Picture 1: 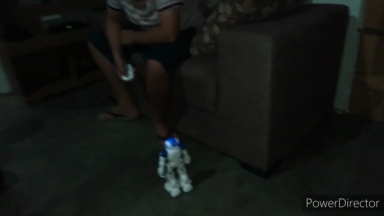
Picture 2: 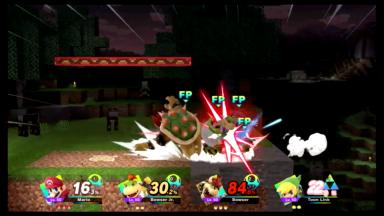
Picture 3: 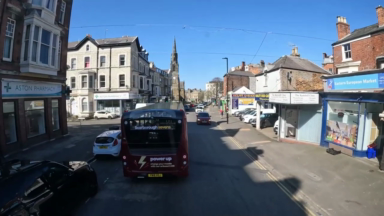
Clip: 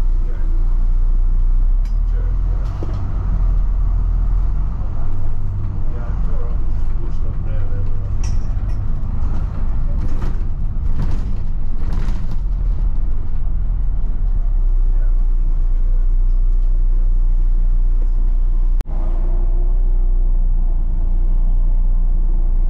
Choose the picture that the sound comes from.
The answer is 3